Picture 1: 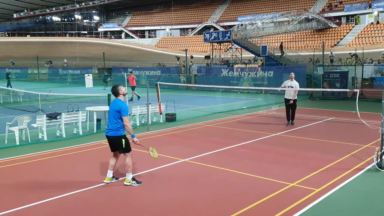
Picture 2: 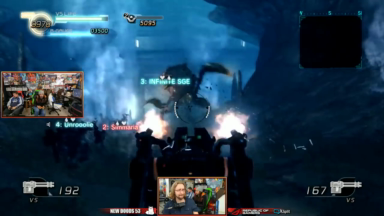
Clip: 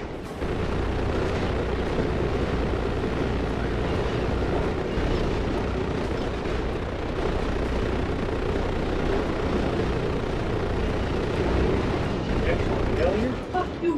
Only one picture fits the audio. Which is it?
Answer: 2